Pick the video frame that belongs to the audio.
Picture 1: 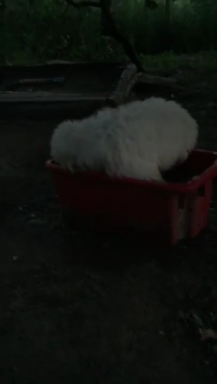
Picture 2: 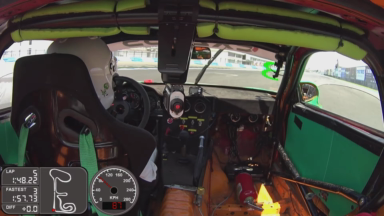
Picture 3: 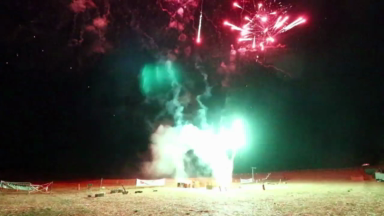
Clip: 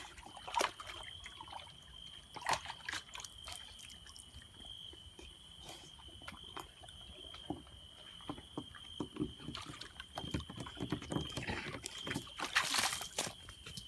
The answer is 1